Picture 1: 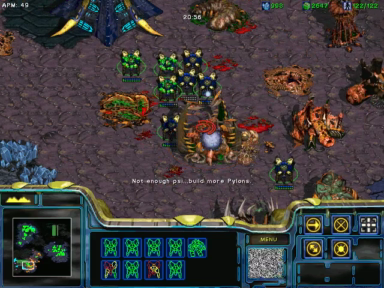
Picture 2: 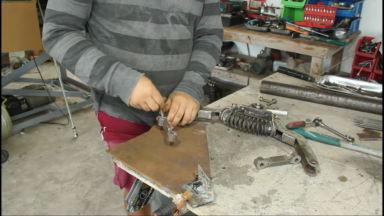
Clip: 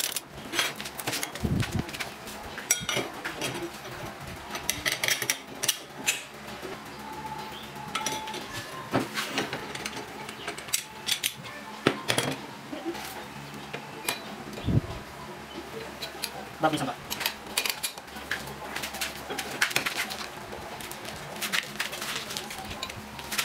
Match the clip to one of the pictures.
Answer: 2